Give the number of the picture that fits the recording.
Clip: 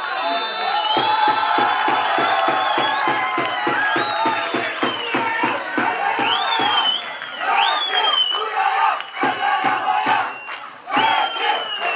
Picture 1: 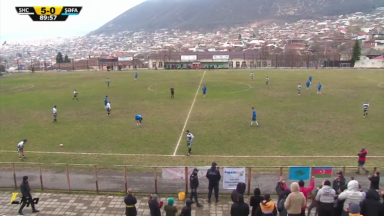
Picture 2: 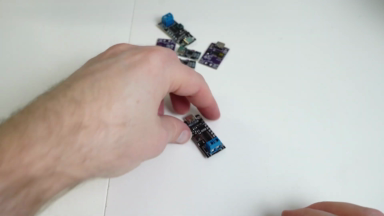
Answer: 1